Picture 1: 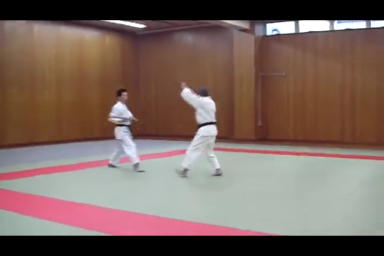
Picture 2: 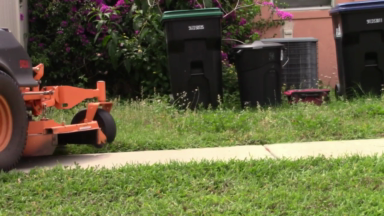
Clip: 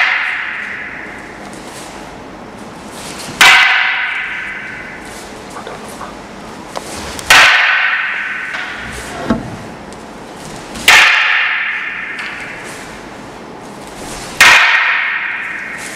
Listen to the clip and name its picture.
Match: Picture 1